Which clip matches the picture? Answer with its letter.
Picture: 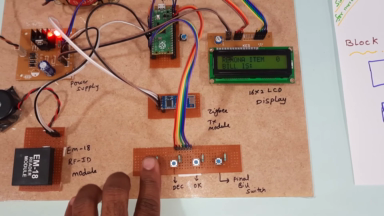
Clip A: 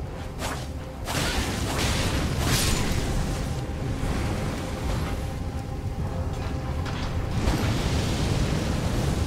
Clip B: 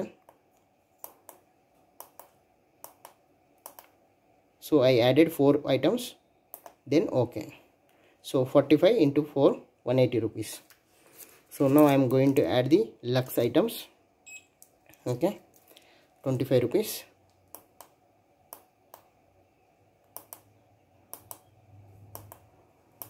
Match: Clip B